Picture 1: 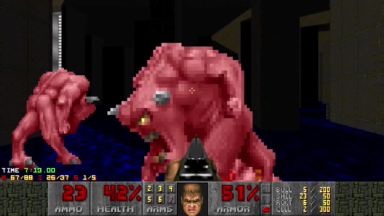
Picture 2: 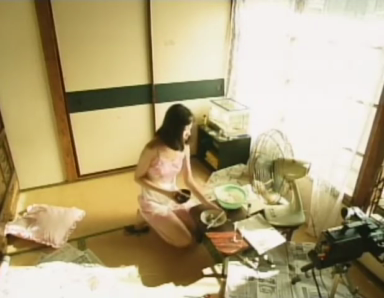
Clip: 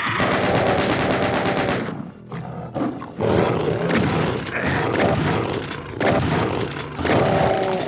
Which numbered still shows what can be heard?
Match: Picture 1